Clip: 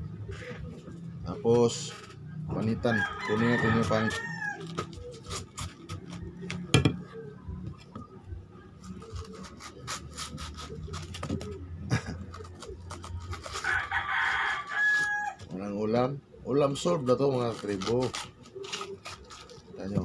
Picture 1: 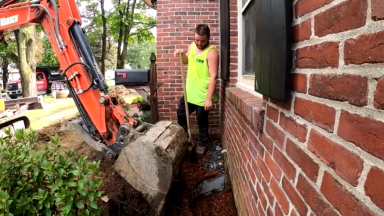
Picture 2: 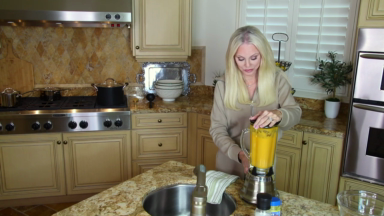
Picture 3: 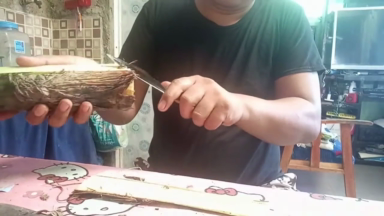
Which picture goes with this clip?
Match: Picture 3